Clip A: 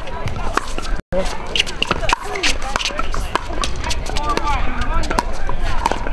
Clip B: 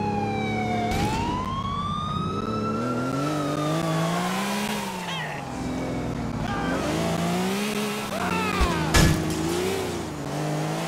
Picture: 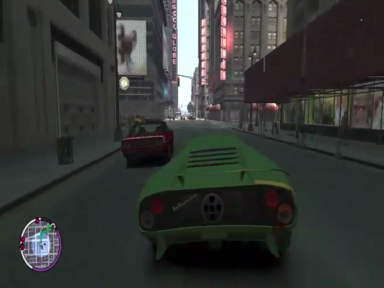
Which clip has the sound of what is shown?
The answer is B